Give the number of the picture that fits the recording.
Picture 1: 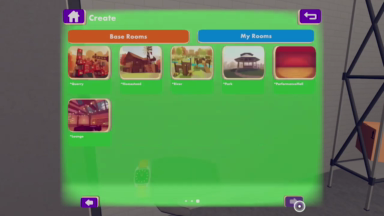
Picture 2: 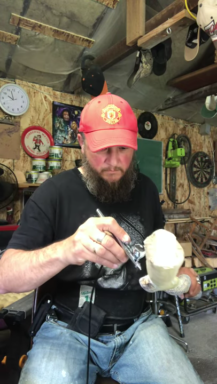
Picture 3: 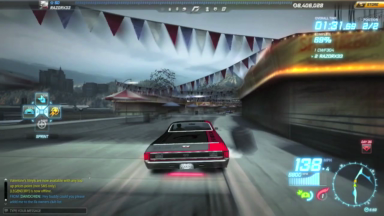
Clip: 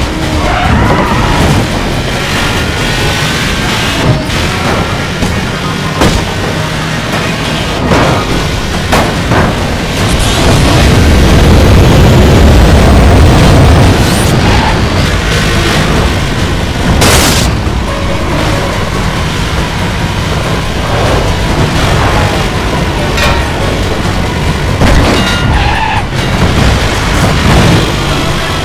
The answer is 3